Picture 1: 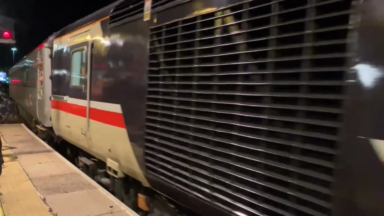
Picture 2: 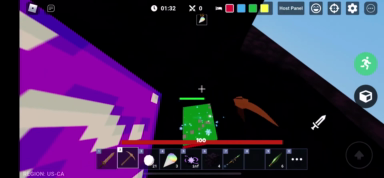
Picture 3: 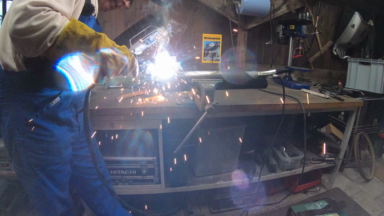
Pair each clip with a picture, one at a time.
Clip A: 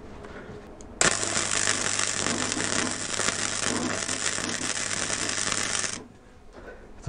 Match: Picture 3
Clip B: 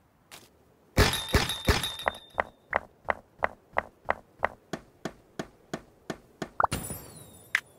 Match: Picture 2